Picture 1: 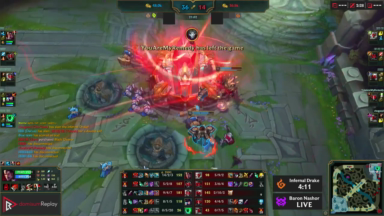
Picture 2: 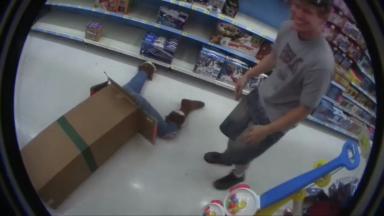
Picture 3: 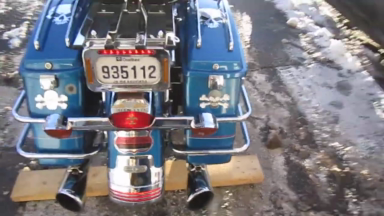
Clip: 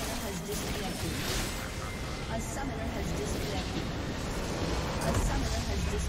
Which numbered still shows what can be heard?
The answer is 1